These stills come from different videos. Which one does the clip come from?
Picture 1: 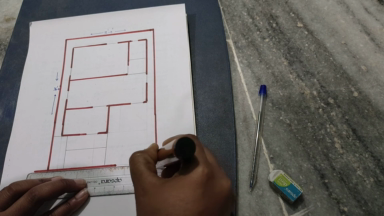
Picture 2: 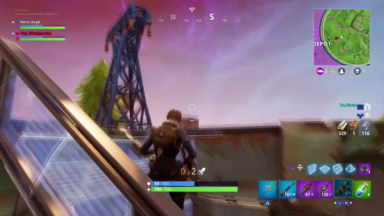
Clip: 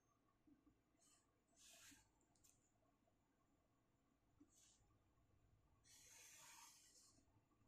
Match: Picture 1